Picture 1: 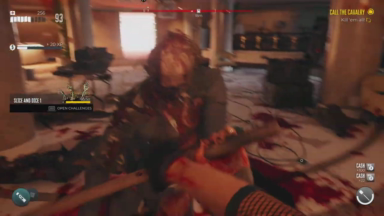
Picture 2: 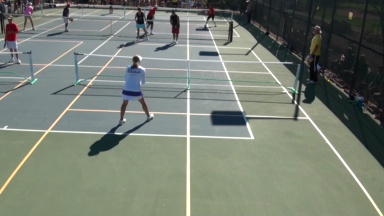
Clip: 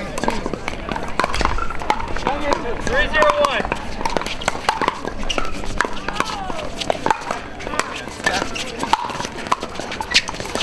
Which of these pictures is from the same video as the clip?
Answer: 2